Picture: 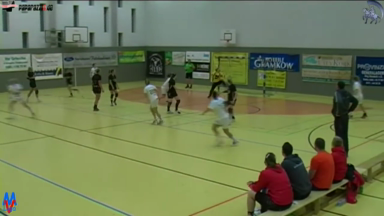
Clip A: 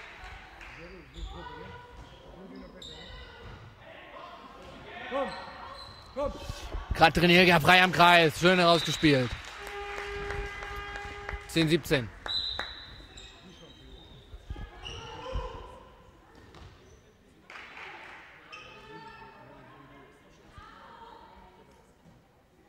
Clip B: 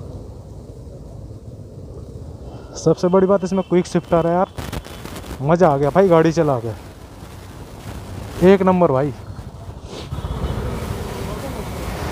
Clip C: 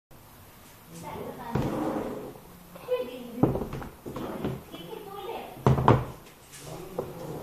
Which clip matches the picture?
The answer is A